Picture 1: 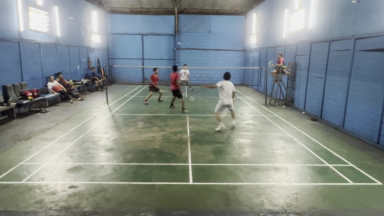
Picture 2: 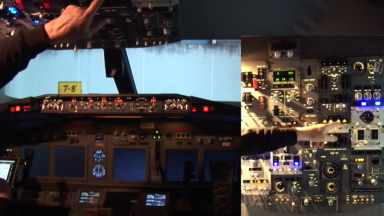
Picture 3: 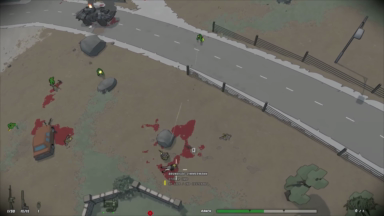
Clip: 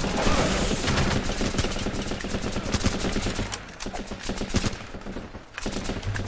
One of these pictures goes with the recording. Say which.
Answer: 3